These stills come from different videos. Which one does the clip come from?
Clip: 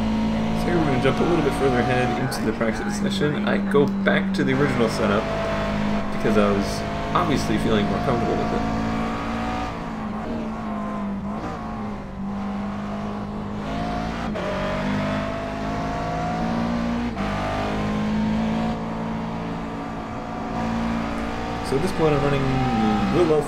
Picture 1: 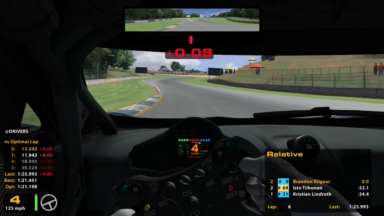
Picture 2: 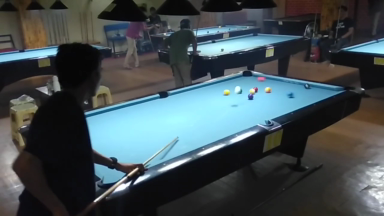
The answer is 1